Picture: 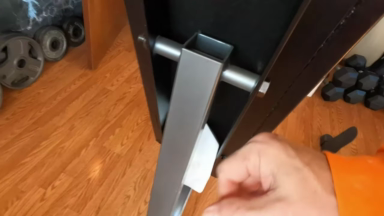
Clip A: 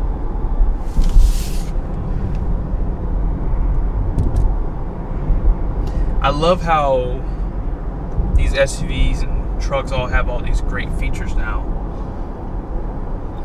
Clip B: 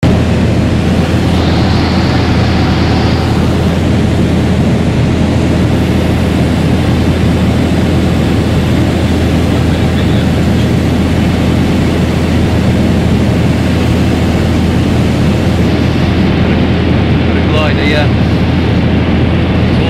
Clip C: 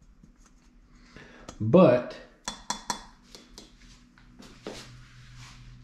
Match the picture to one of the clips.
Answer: C